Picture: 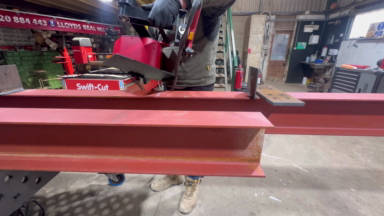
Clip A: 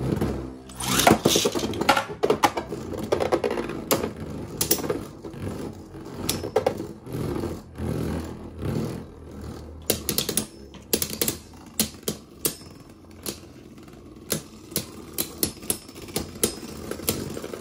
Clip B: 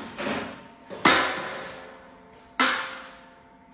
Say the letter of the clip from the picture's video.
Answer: B